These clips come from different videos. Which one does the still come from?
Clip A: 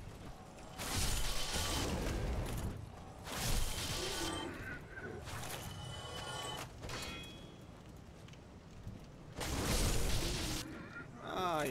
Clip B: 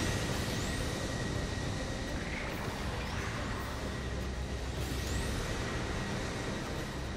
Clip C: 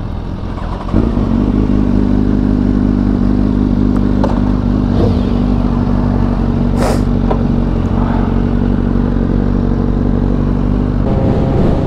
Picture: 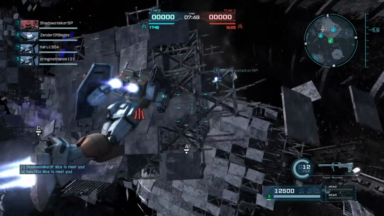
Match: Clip B